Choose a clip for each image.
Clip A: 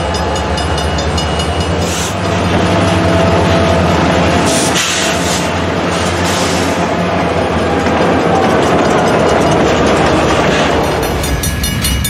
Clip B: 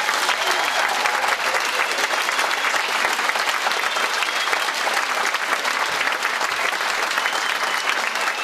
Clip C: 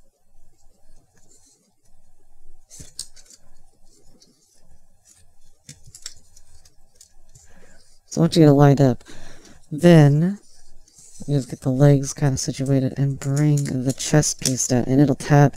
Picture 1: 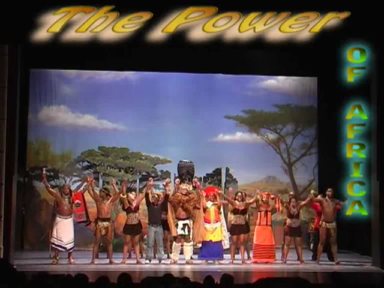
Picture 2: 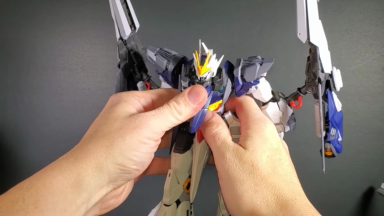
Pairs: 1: B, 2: C